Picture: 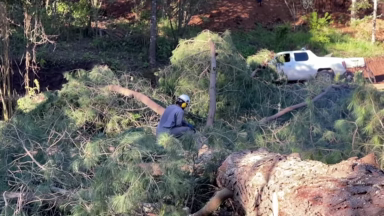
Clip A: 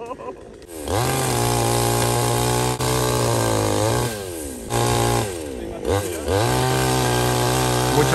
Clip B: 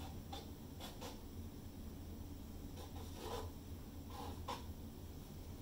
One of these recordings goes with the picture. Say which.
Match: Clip A